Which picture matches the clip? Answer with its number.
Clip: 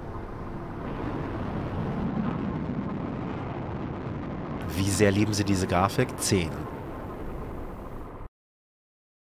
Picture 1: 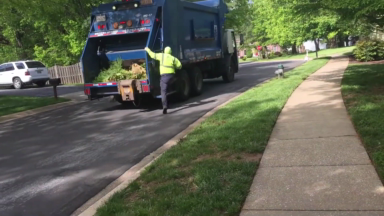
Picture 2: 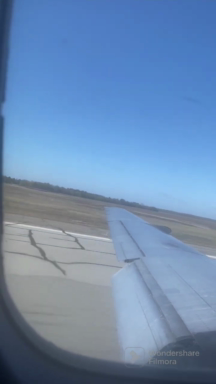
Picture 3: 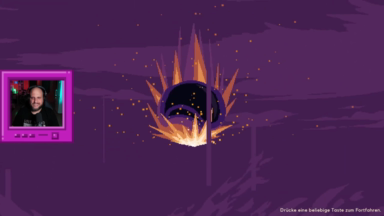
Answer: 3